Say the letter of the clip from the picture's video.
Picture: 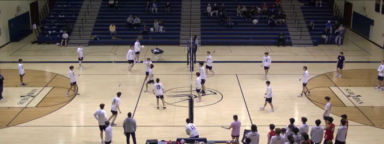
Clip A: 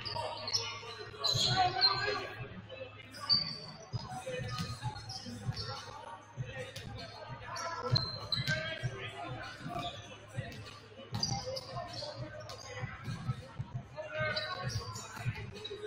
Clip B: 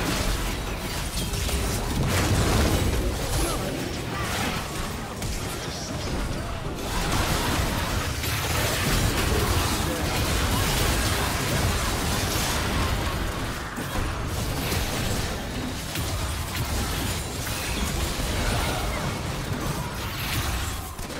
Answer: A